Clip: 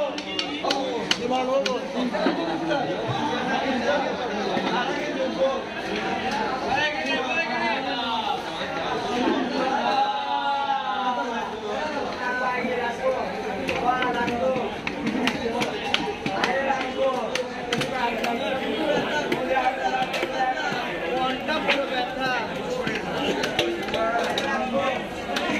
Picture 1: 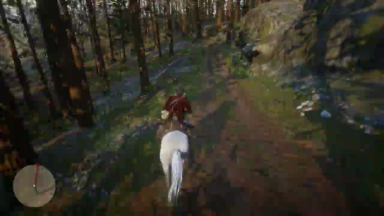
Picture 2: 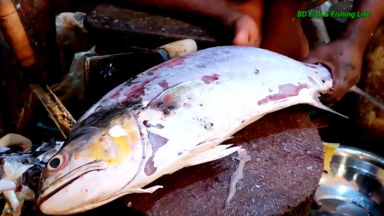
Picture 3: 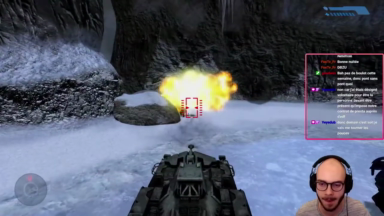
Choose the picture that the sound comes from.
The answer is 2